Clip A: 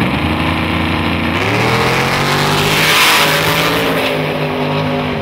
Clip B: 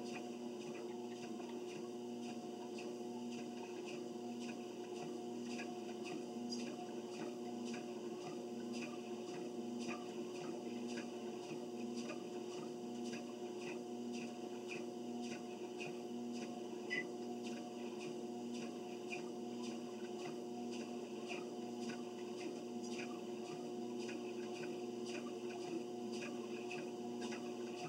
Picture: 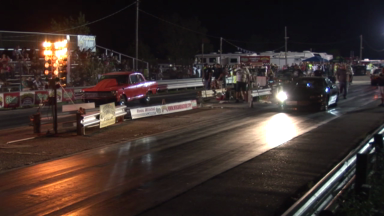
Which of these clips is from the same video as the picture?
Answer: A